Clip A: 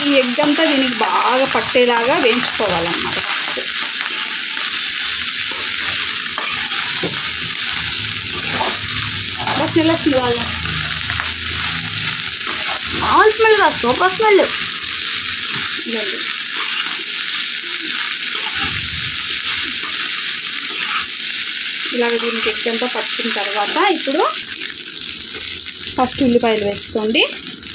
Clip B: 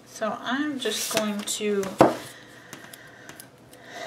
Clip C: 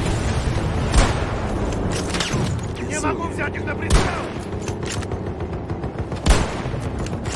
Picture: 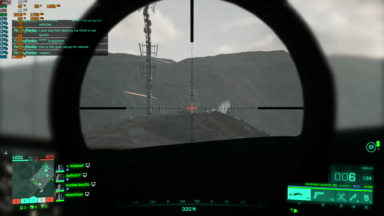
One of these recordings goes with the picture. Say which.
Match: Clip C